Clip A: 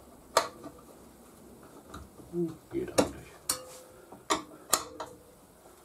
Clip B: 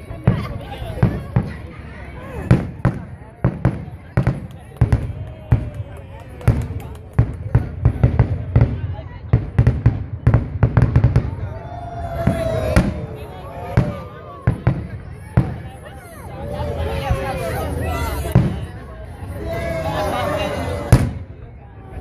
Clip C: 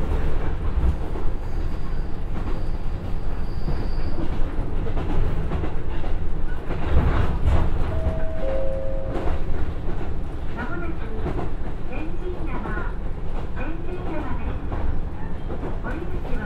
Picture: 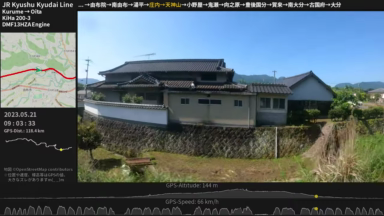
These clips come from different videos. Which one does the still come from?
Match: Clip C